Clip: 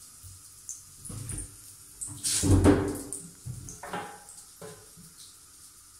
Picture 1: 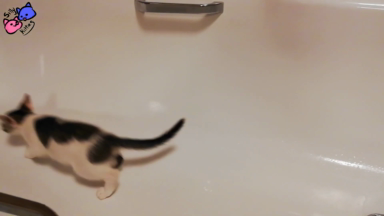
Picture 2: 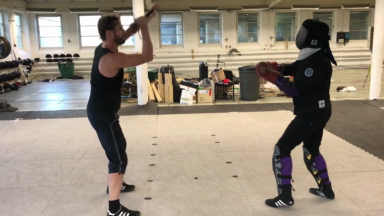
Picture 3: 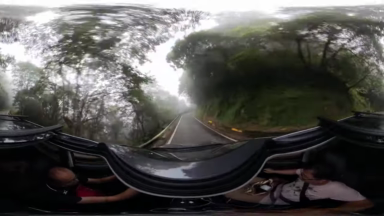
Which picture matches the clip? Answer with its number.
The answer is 1